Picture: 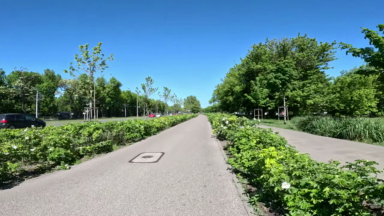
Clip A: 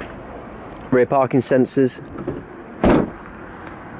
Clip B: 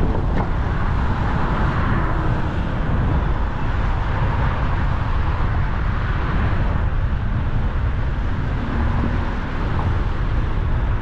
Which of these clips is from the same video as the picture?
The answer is B